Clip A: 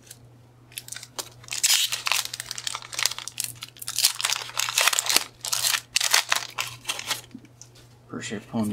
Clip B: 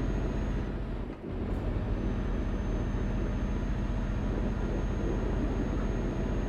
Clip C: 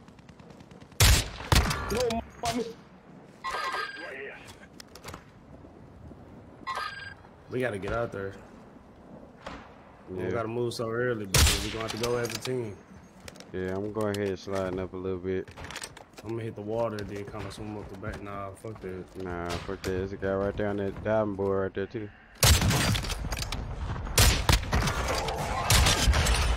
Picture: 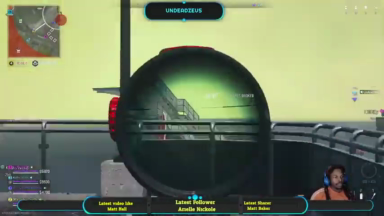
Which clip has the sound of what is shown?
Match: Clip C